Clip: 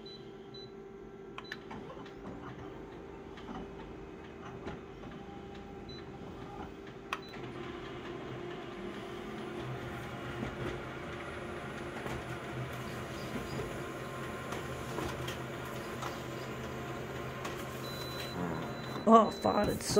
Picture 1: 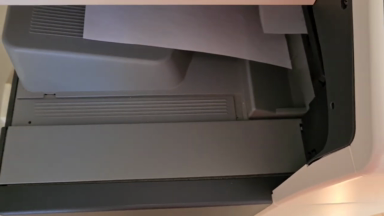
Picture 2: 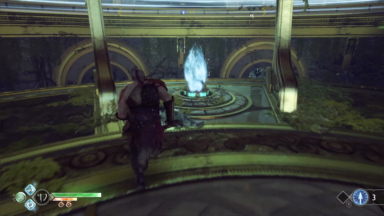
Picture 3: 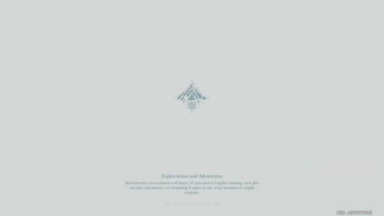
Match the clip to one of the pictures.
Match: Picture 1